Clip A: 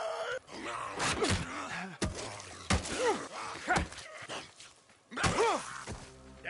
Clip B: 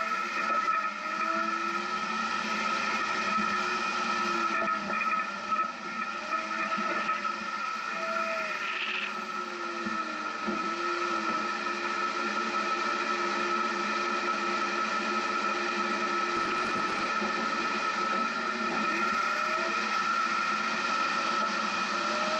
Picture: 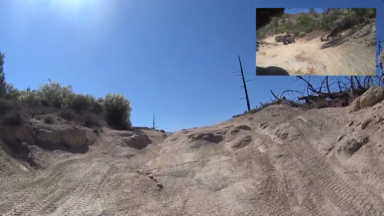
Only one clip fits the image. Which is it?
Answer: B